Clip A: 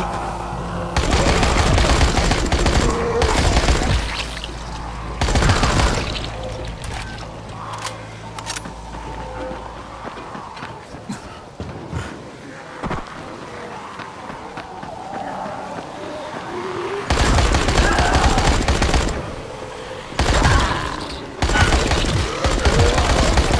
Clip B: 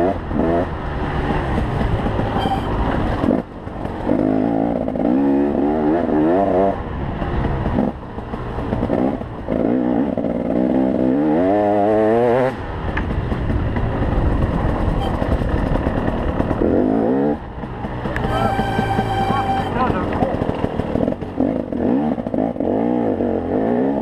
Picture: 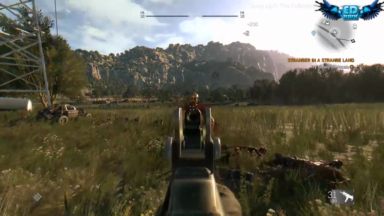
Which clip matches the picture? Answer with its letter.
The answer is A